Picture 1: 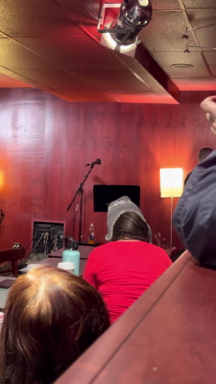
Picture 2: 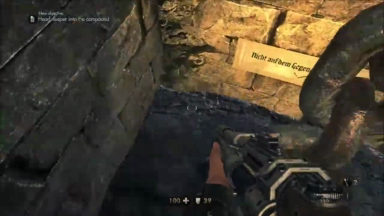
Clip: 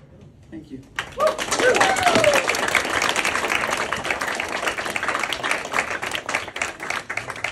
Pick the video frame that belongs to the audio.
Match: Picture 1